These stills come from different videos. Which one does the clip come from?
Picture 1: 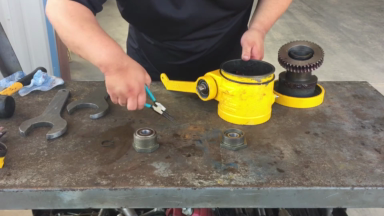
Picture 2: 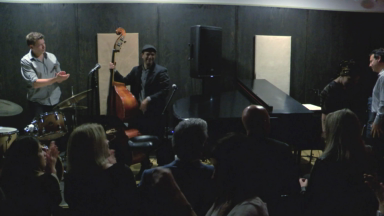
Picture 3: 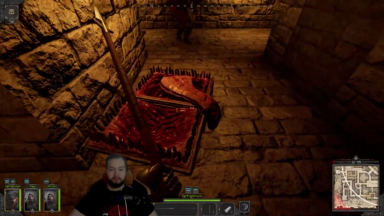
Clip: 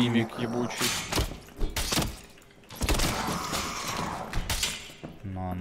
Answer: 3